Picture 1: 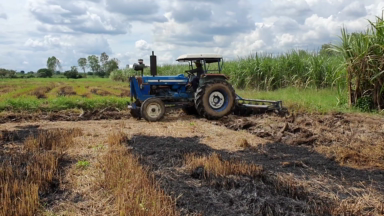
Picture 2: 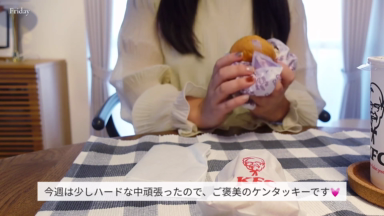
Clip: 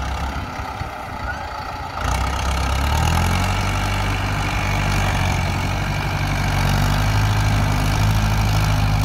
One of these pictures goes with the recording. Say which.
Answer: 1